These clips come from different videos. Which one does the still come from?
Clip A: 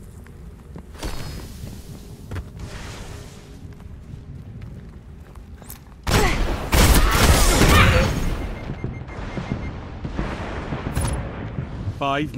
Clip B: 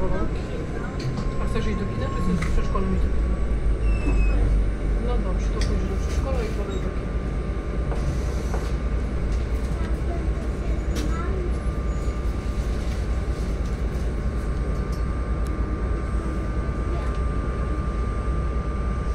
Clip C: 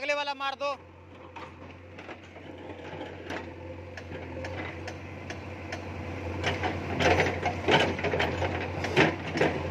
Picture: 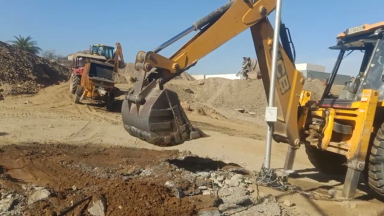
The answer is C